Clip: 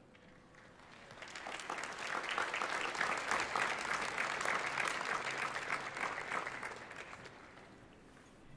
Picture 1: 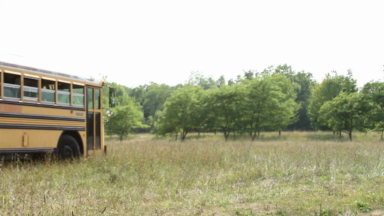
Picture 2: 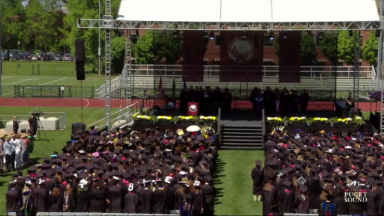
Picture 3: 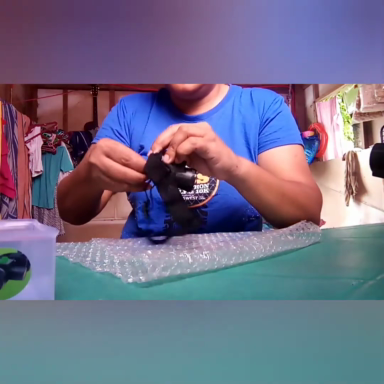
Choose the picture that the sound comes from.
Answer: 2